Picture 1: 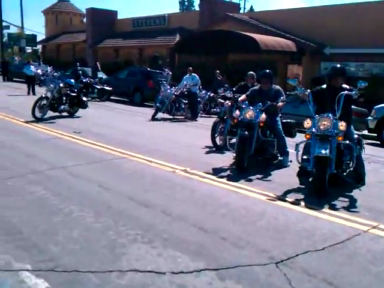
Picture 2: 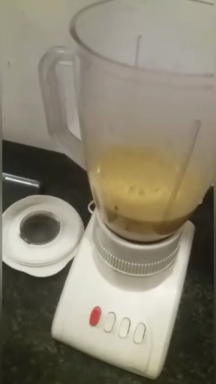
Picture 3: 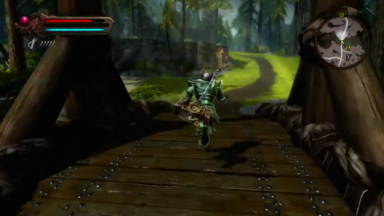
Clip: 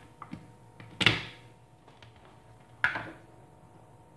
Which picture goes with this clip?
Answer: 2